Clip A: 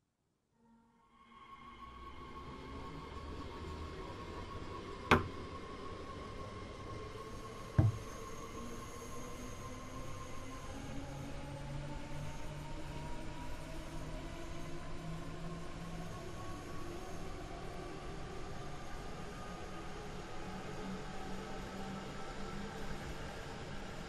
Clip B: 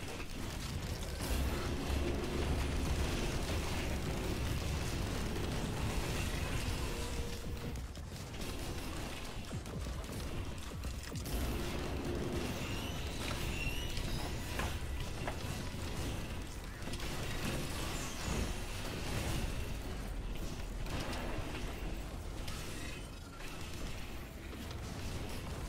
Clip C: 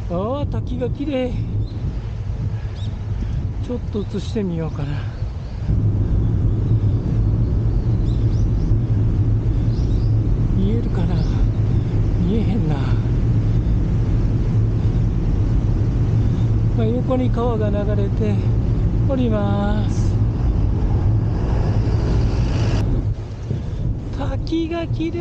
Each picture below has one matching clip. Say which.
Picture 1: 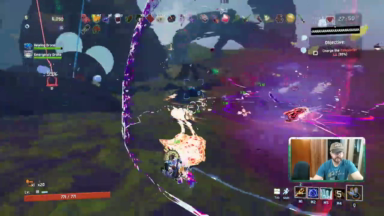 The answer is B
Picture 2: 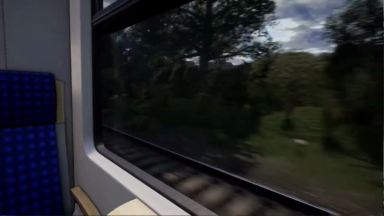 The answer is A